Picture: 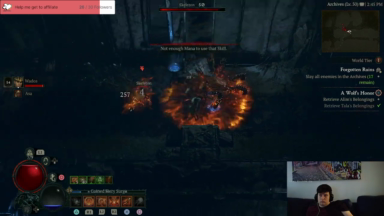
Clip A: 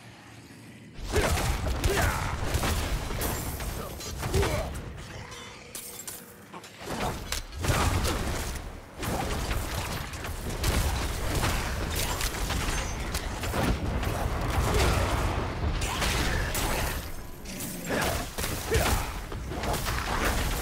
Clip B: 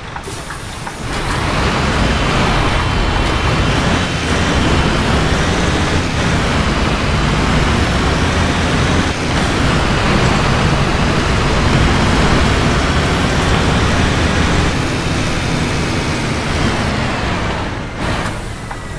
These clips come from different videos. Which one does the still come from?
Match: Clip A